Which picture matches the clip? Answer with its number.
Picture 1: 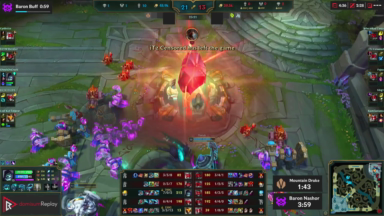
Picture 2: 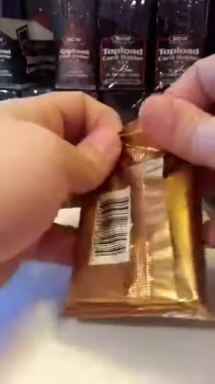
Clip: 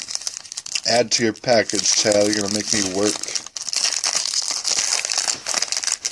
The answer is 2